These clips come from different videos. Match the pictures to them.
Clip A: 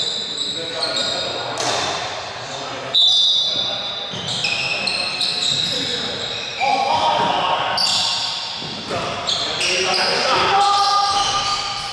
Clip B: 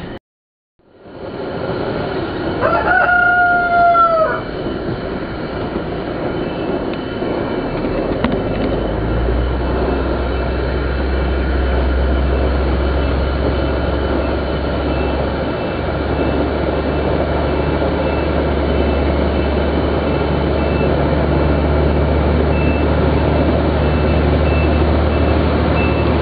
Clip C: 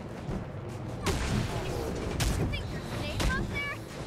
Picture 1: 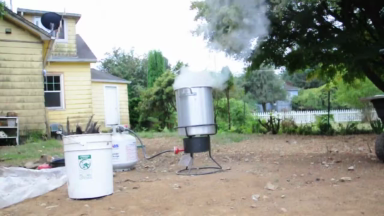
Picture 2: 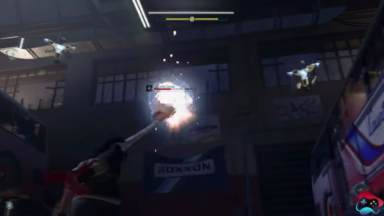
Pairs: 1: B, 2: C